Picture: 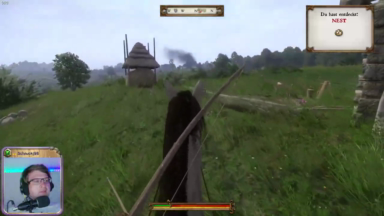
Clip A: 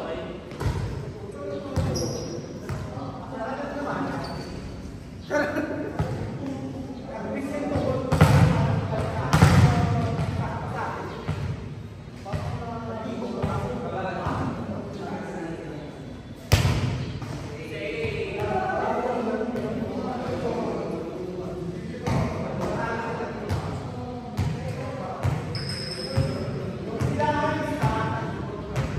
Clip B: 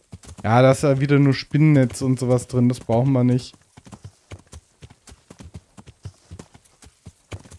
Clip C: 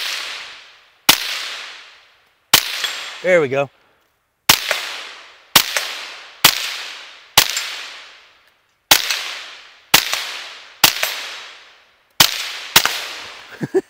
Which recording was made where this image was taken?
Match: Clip B